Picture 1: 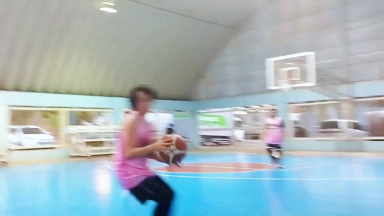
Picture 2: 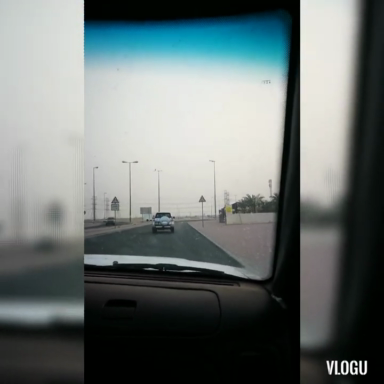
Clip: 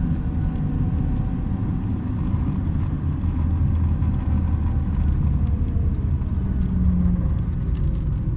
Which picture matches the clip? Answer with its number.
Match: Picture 2